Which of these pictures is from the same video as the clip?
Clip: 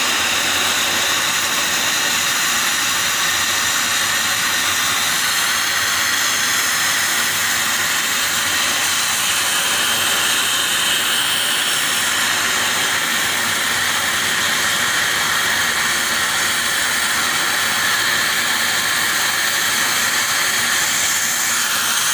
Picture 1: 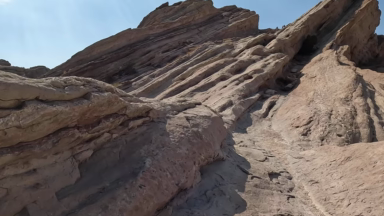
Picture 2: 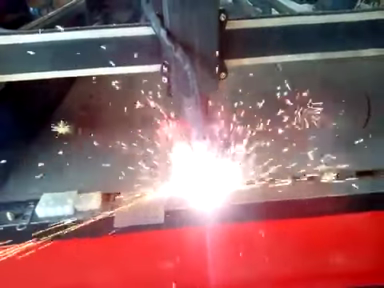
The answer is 2